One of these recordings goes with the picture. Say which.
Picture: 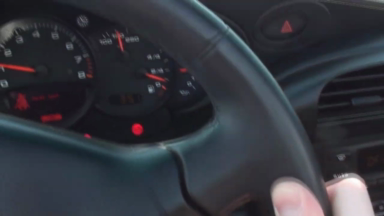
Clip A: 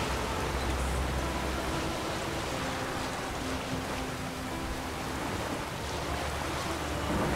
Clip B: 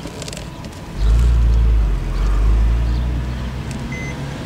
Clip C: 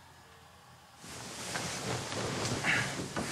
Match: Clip B